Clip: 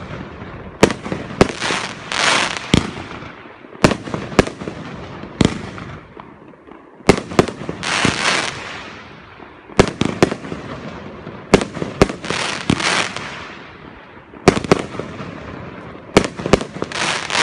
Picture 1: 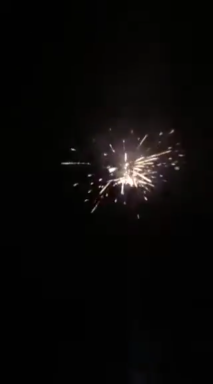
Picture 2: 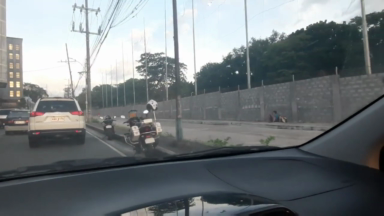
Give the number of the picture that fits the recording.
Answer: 1